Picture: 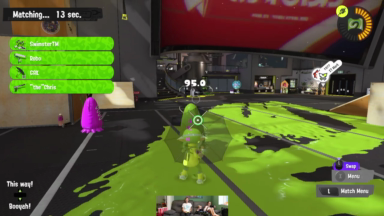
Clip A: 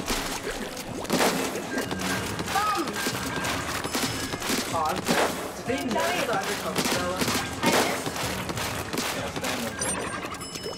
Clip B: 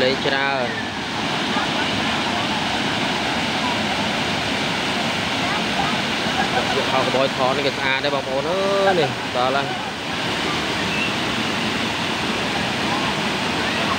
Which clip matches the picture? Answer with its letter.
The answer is A